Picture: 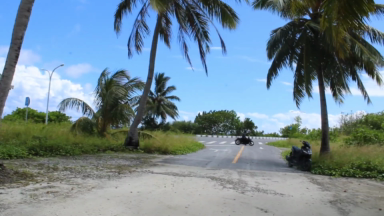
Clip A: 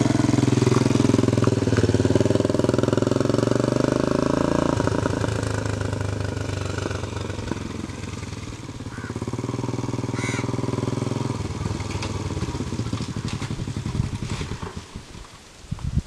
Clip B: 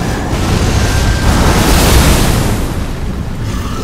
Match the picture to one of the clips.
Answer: A